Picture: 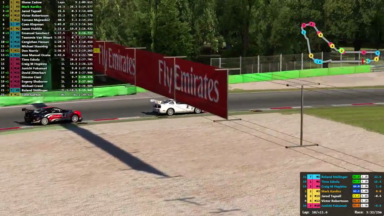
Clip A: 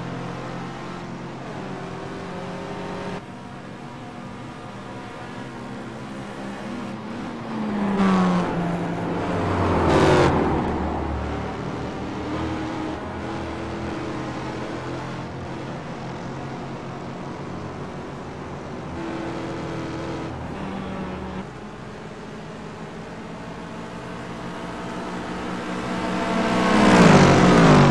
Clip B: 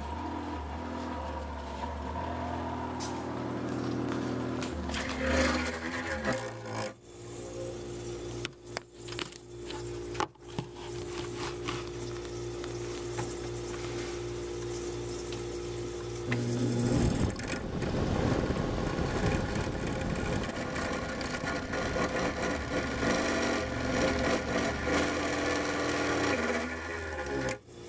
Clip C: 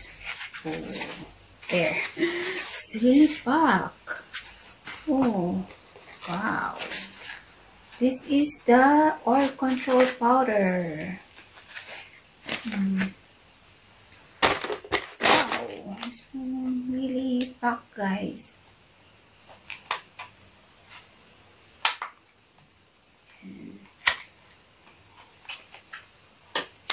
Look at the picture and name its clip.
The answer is A